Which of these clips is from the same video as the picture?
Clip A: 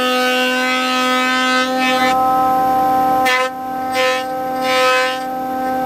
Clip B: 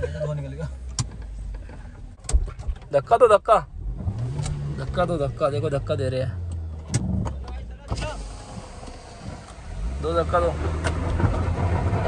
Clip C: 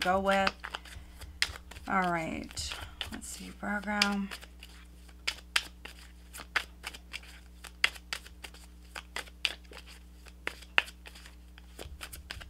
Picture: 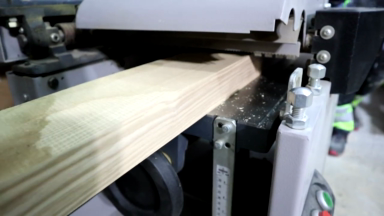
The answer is A